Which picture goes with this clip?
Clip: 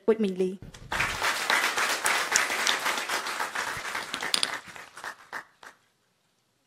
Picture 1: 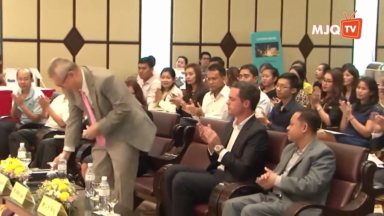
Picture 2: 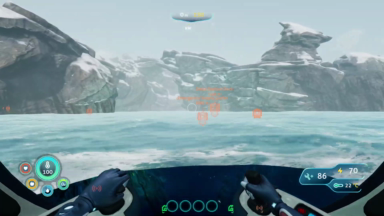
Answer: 1